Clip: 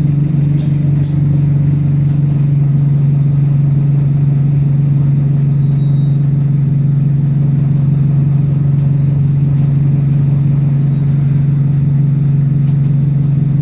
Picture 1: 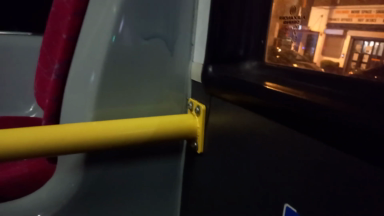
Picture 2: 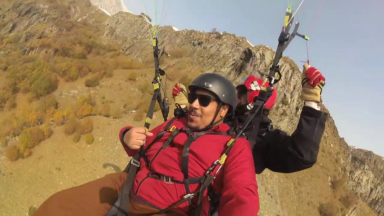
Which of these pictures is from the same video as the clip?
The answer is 1